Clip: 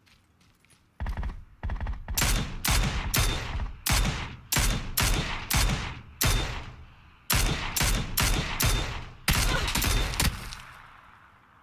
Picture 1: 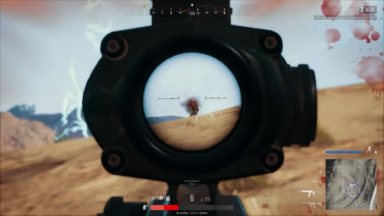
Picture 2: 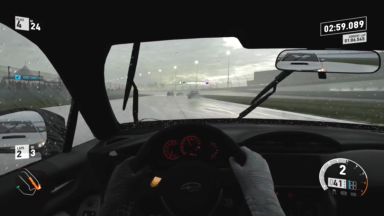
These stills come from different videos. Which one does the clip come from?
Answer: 1